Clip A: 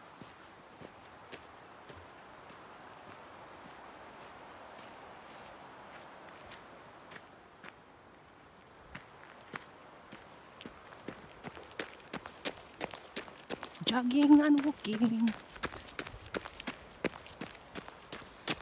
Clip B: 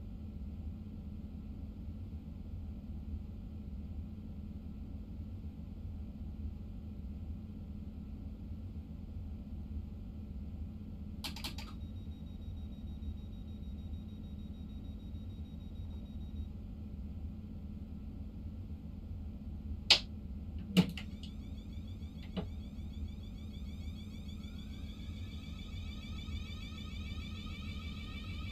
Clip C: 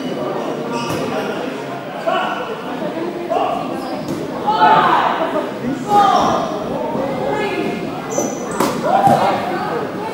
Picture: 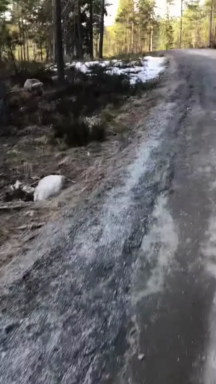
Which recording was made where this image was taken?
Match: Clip A